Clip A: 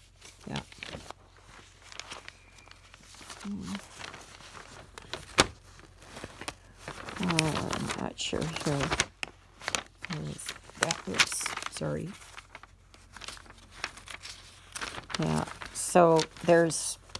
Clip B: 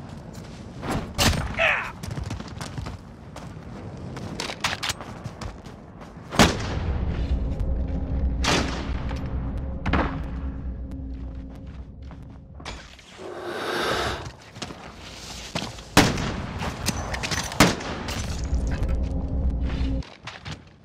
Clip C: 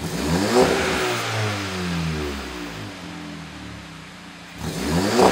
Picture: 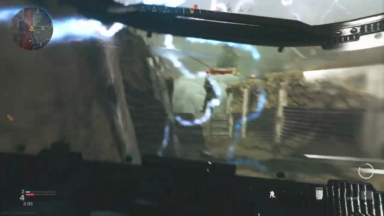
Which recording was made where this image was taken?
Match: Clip B